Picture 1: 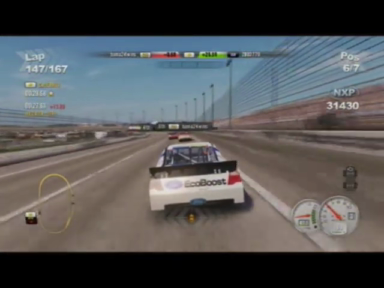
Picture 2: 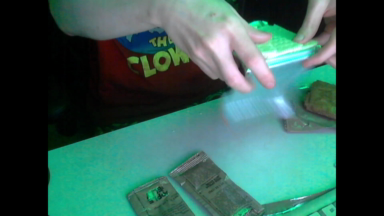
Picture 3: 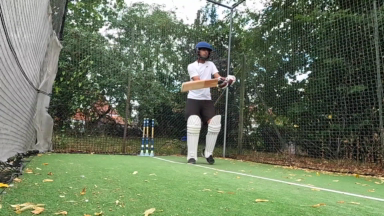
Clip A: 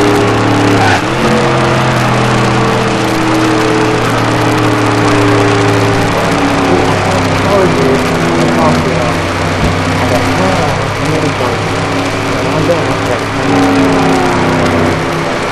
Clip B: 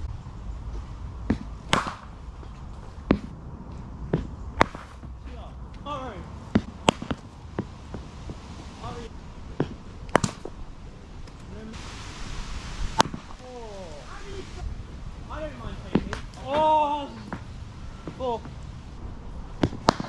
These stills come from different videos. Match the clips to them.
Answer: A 1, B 3